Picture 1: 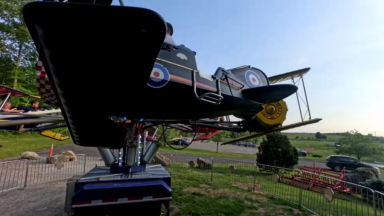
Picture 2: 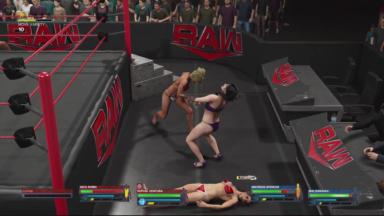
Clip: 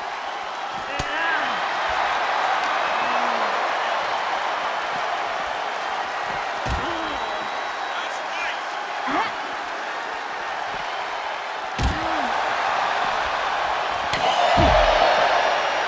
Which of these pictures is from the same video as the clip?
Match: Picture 2